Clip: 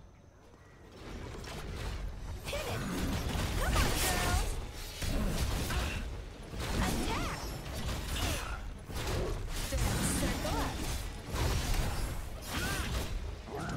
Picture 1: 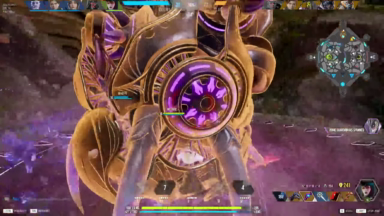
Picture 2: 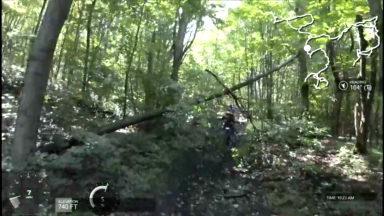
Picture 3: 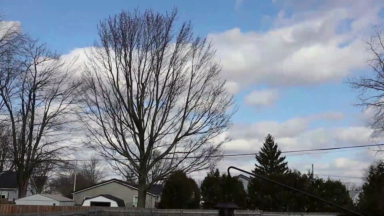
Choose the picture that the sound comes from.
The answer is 1